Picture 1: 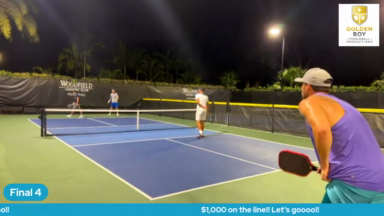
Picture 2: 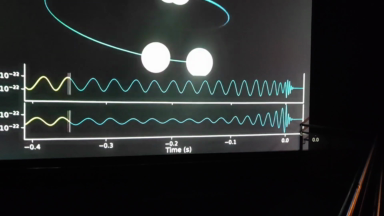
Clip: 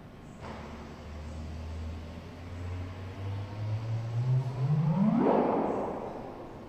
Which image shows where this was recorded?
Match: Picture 2